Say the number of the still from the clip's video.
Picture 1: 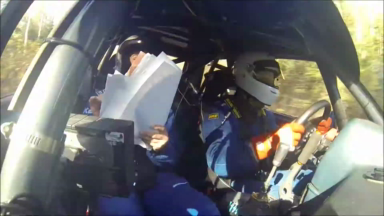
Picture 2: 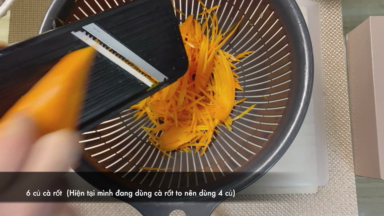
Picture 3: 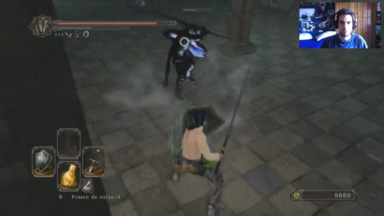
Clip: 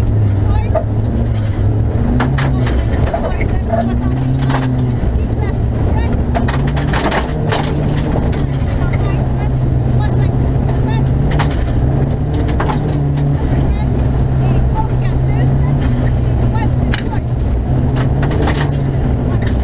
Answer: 1